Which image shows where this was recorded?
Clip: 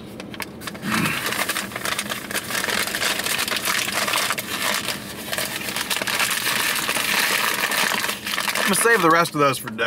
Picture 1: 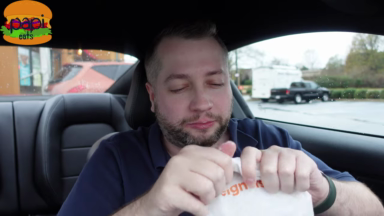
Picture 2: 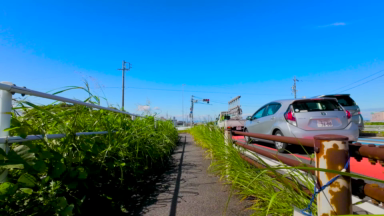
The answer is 1